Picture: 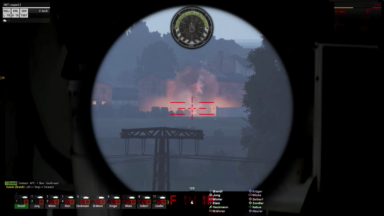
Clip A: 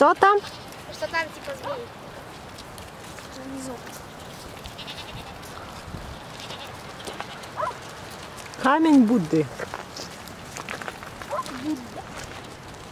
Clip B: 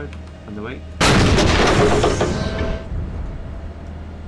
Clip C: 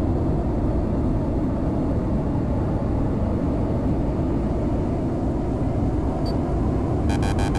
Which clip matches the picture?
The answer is B